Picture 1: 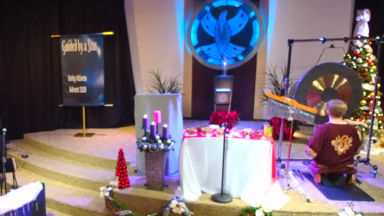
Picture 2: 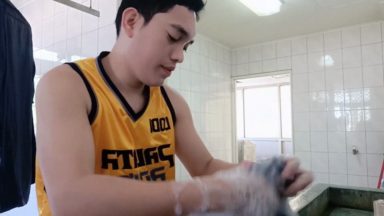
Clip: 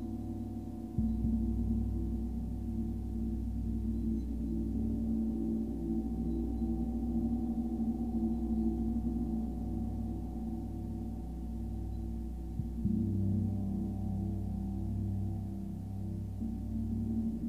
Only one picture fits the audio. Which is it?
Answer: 1